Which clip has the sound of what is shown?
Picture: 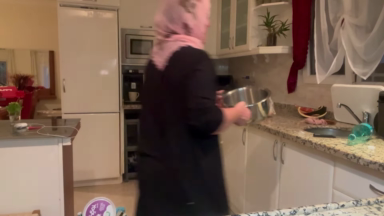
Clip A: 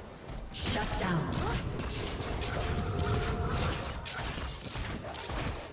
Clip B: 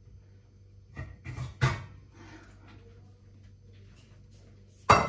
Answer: B